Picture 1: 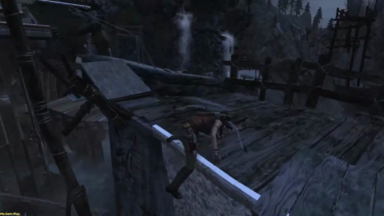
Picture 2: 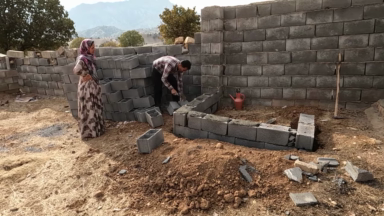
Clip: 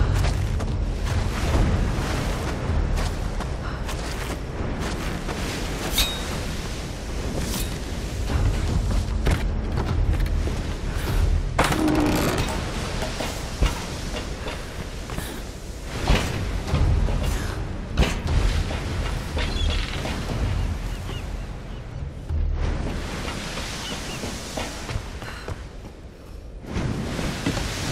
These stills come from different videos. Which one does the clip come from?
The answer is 1